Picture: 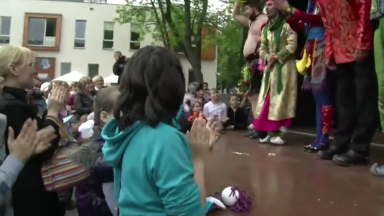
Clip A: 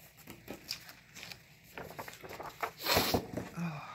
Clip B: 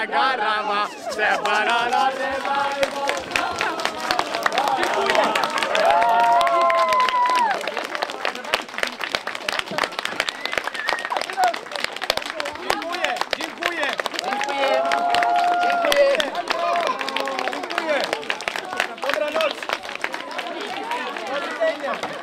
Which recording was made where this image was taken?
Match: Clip B